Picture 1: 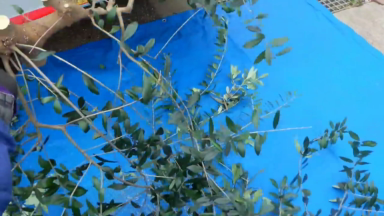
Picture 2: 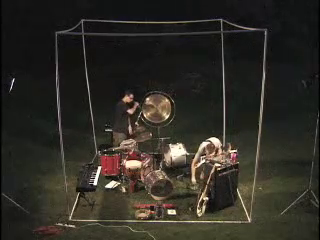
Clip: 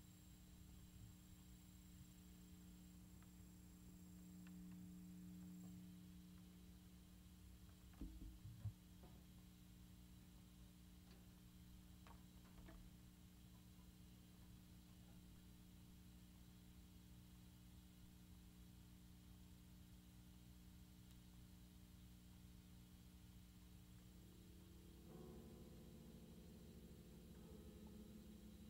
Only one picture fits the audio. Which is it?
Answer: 2